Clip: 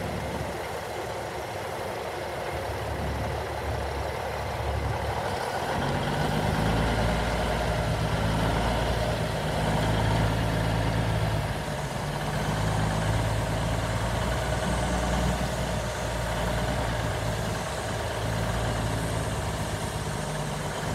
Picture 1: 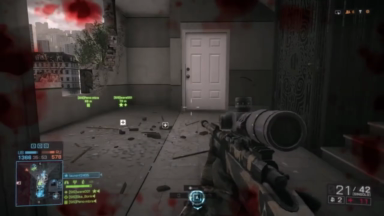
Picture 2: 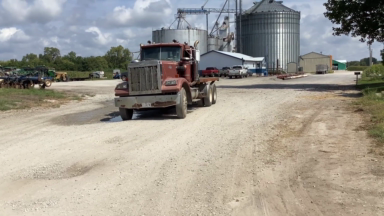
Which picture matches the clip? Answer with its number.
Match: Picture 2